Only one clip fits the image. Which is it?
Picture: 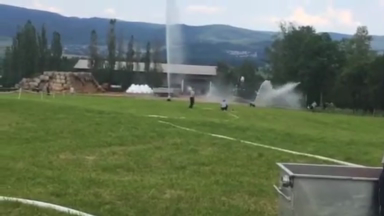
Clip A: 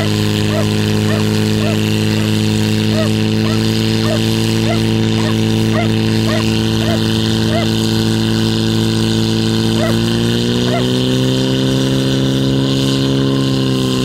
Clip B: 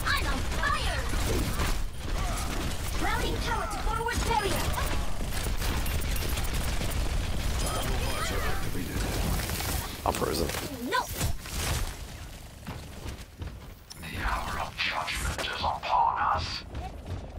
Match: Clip A